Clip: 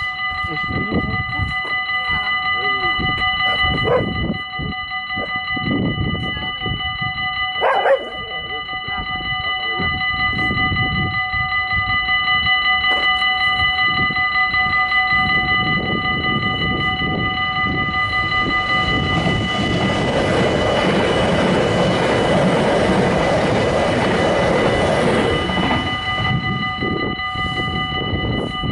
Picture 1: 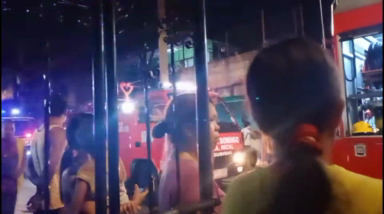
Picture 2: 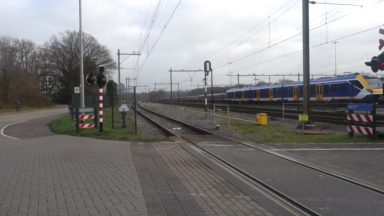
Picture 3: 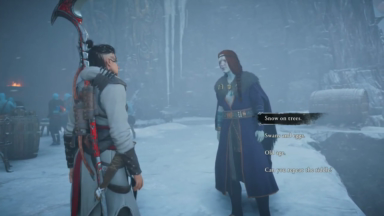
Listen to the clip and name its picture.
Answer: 2